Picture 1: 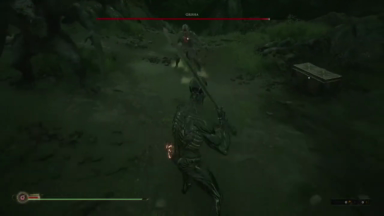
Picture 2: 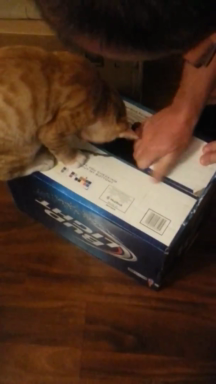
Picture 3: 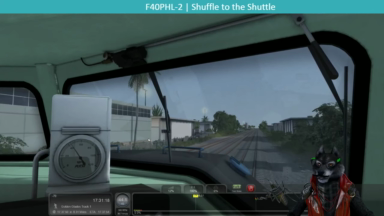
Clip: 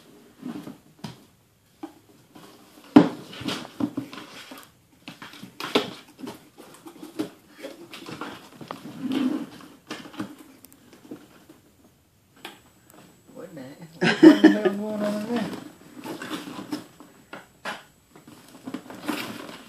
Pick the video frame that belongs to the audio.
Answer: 2